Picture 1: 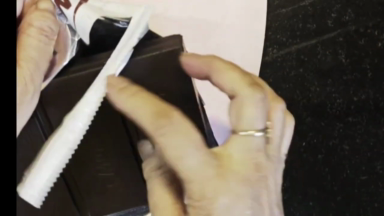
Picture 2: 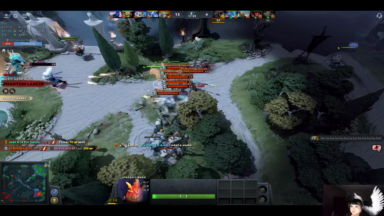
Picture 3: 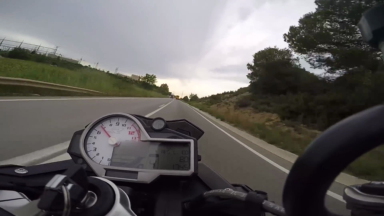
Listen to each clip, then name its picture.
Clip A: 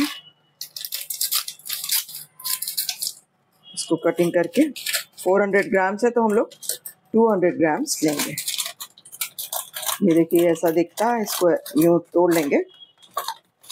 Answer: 1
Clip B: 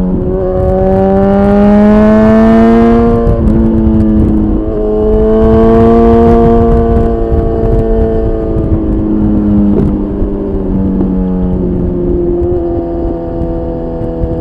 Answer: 3